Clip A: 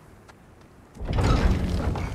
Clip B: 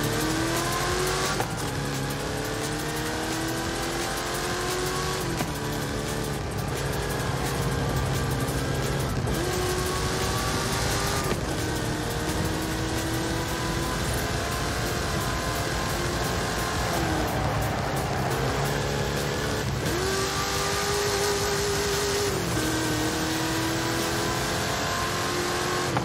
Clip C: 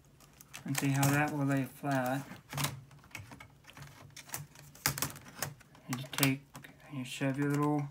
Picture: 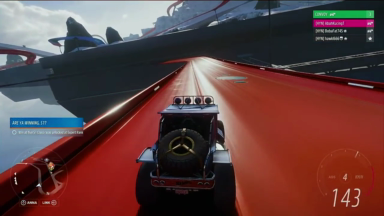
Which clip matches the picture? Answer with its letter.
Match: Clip B